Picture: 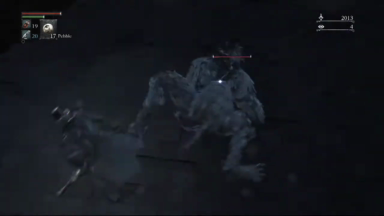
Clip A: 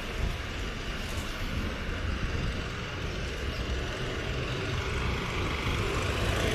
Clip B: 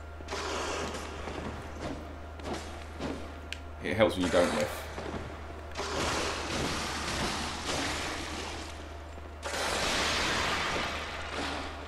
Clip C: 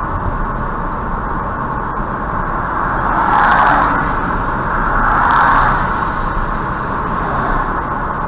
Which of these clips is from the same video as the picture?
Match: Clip B